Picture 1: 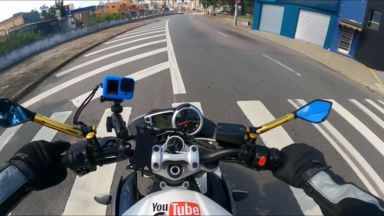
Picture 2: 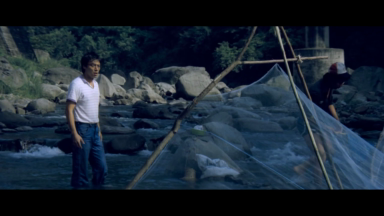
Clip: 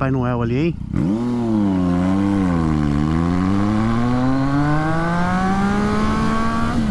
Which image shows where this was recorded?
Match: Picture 1